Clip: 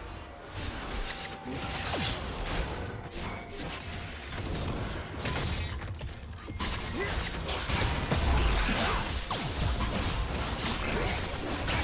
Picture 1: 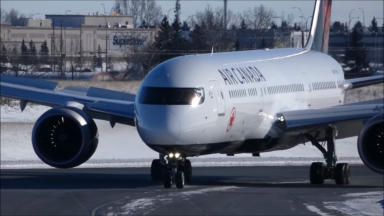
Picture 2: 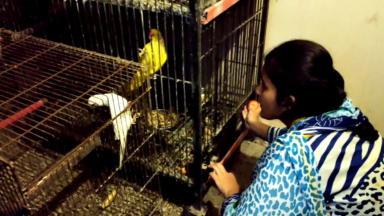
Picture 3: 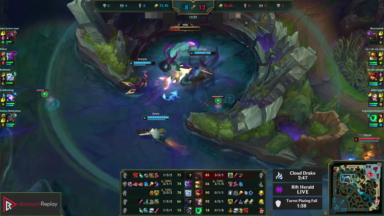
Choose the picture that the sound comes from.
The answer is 3